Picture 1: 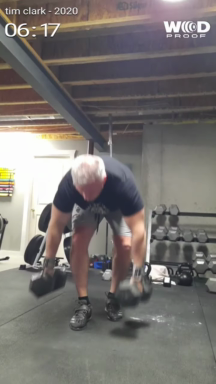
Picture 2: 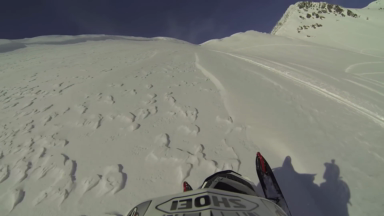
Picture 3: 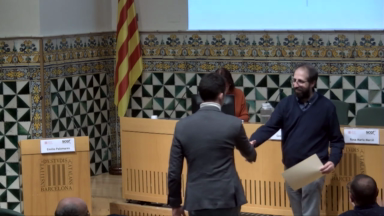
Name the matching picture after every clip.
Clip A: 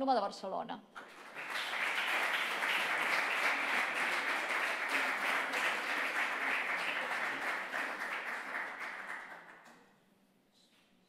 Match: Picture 3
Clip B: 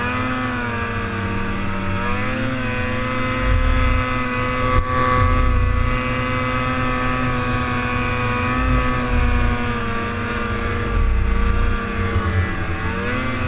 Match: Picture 2